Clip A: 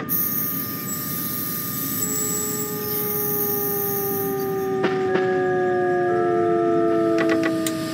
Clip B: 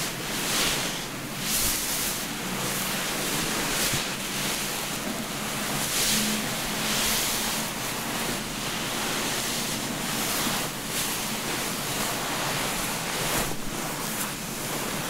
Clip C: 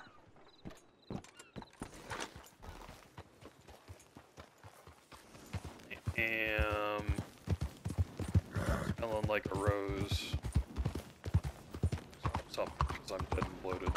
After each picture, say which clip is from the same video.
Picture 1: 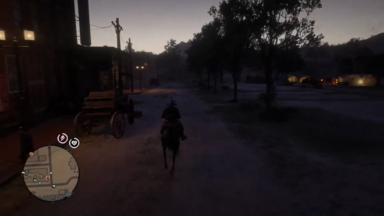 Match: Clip C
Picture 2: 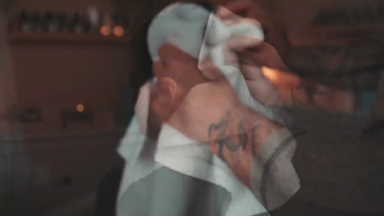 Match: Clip B